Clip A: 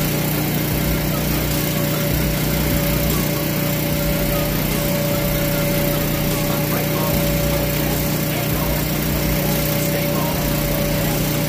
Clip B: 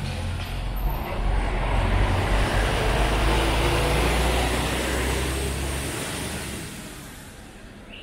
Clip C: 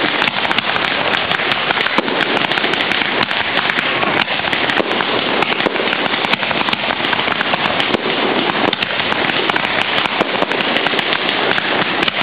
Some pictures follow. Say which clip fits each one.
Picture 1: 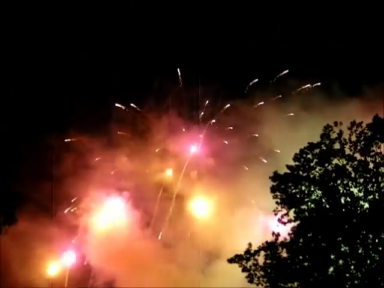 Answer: C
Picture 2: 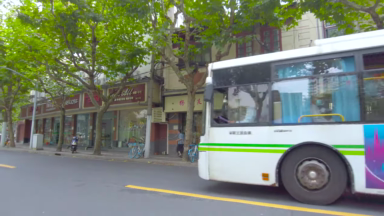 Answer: B